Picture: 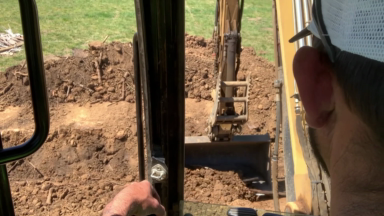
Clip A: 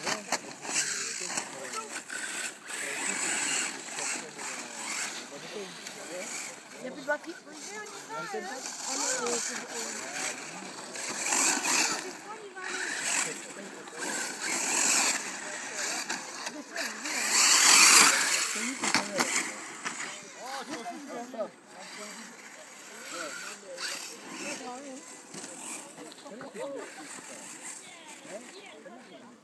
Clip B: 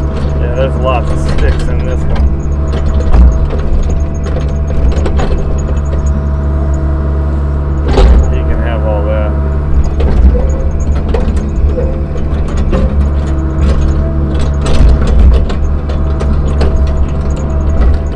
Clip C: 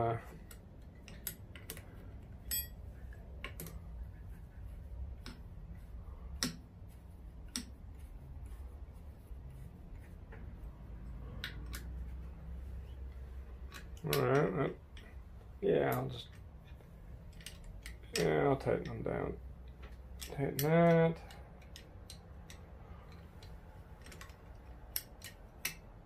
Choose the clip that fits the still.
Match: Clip B